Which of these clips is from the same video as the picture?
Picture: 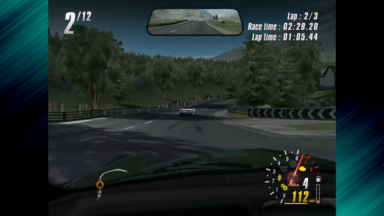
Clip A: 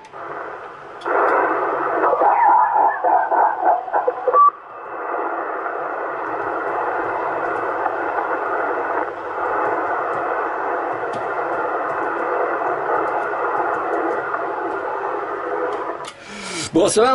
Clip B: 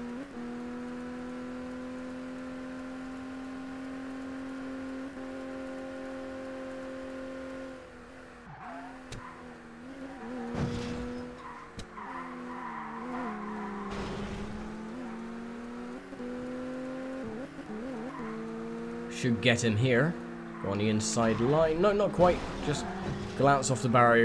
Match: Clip B